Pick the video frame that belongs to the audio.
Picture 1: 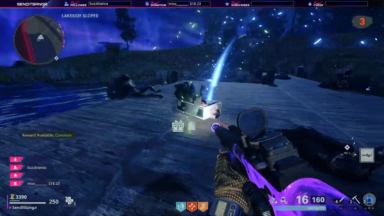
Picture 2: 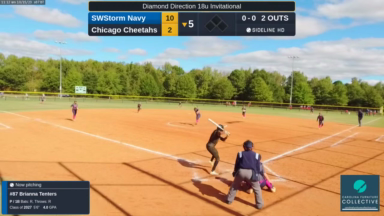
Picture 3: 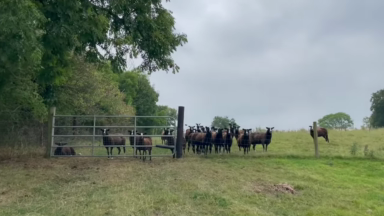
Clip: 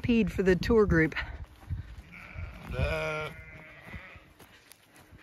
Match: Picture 3